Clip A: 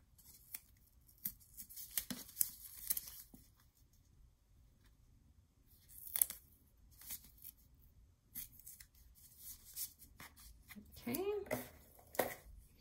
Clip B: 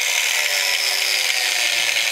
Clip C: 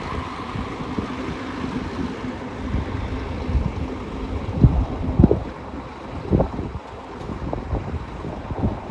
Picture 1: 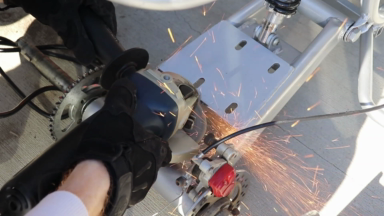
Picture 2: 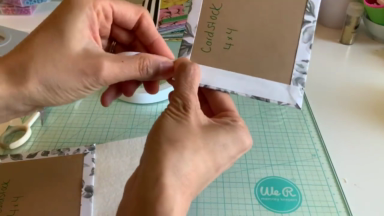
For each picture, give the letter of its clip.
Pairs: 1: B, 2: A